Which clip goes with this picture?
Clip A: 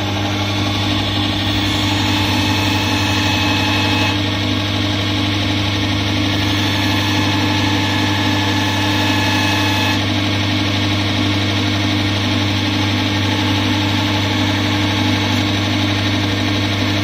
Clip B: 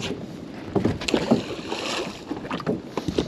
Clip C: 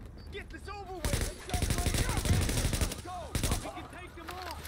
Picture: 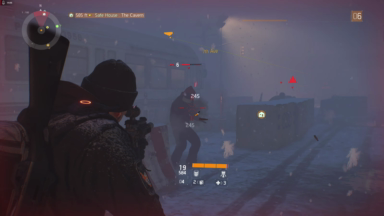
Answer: C